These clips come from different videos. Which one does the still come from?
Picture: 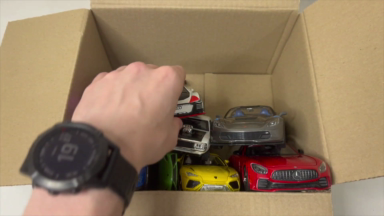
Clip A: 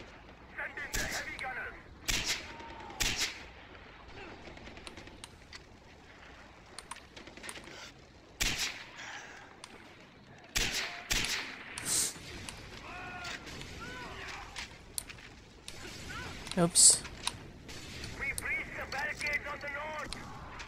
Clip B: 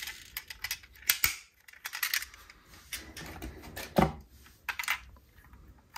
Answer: B